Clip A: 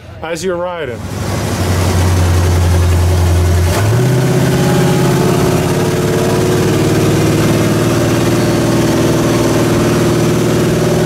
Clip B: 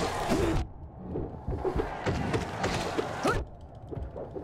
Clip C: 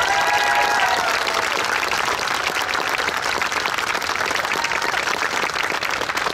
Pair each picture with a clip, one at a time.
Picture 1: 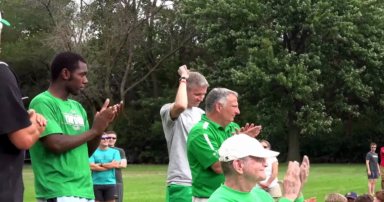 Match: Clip C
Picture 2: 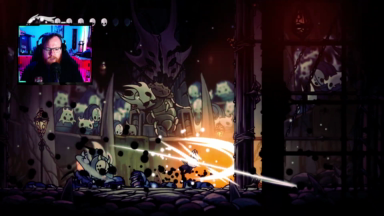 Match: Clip B